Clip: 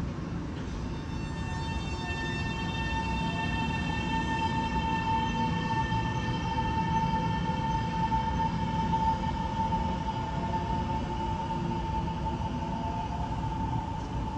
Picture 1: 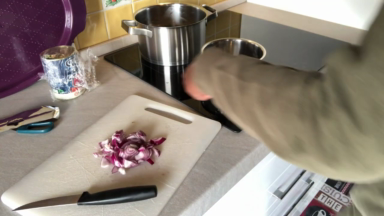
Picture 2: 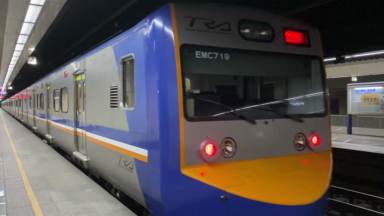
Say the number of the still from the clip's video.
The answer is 2